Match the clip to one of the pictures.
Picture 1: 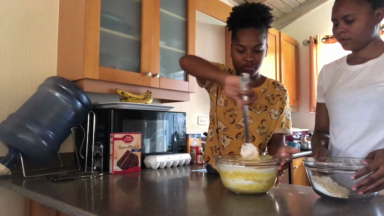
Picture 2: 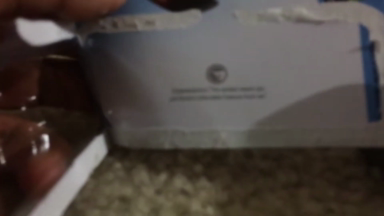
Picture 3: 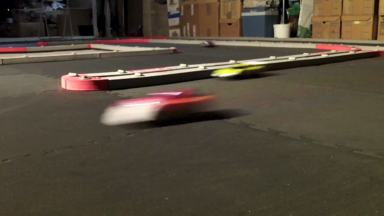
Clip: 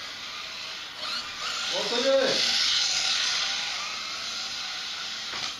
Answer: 3